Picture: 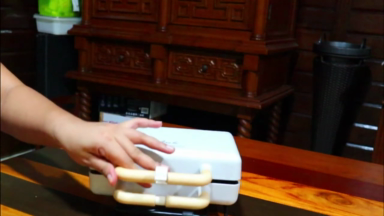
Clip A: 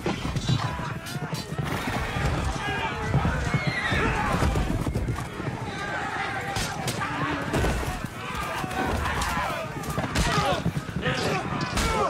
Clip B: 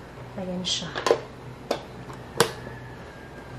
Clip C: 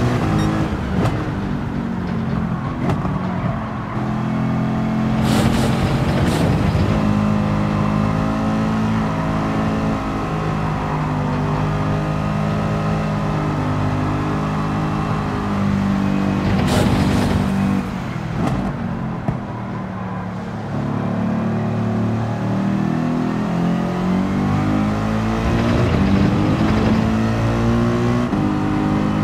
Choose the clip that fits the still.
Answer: B